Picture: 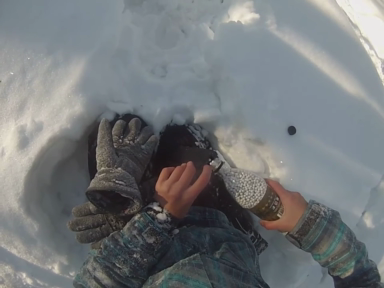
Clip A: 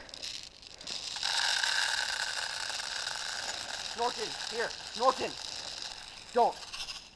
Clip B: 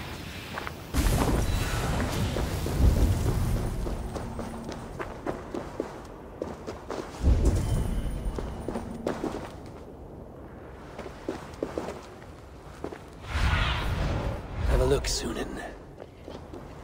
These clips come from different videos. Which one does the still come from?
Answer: A